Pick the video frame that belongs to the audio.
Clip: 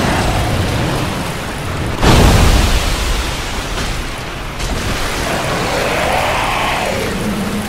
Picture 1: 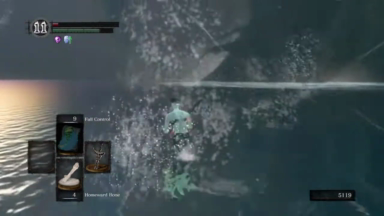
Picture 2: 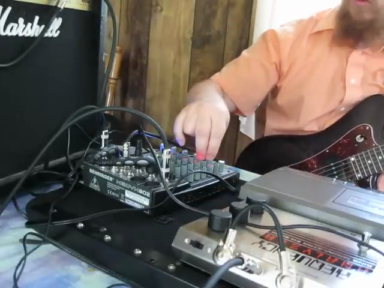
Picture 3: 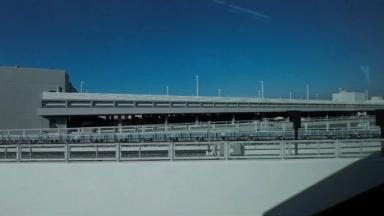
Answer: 1